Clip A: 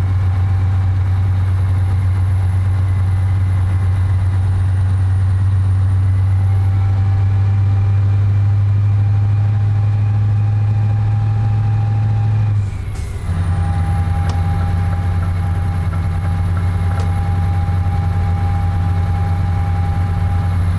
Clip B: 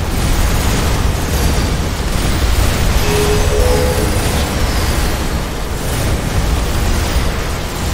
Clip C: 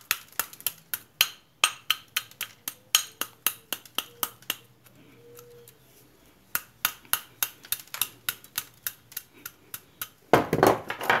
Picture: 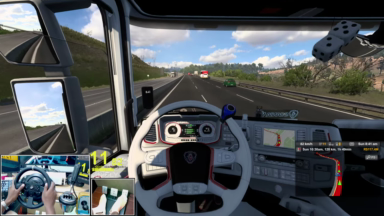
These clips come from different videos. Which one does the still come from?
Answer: A